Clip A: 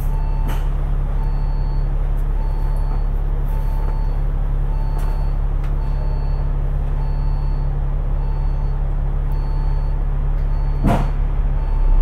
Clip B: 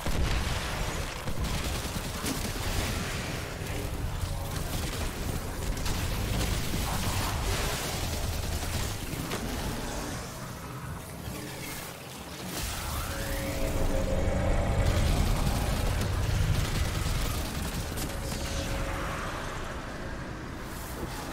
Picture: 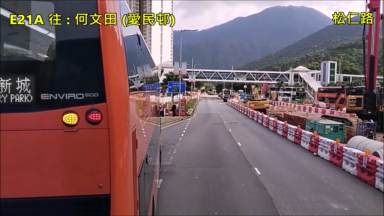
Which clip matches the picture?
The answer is A